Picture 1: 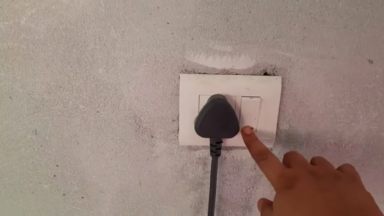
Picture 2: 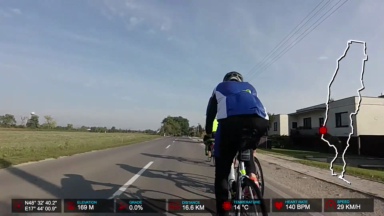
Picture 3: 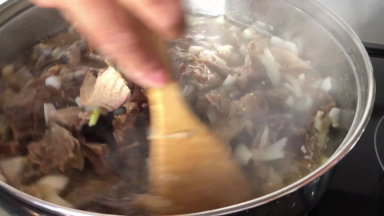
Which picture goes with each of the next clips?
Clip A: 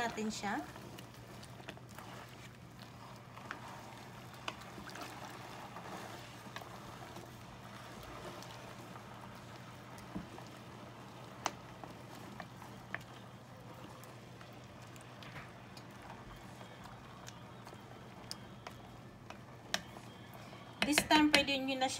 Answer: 3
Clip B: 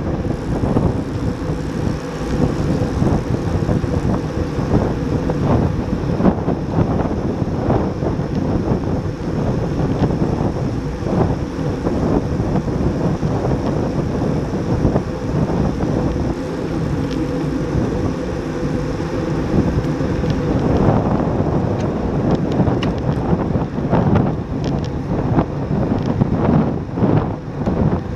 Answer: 2